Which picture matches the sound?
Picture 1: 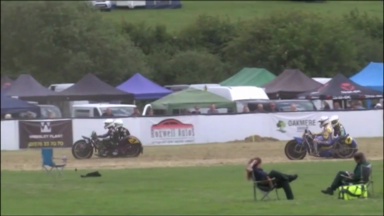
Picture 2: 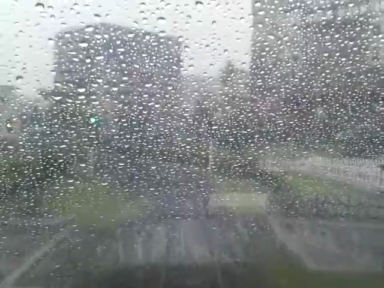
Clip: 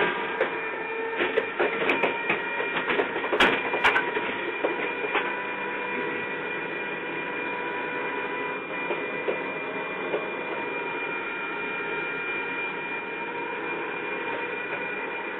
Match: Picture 2